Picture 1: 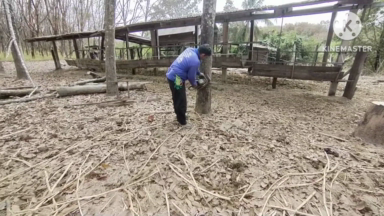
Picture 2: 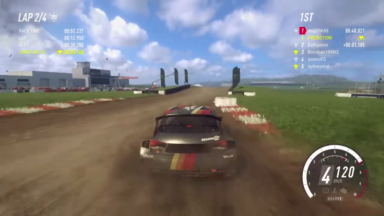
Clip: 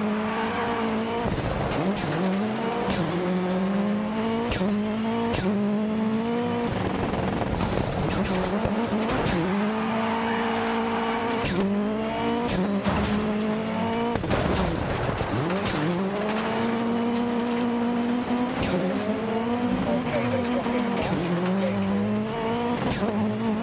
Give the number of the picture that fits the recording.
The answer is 2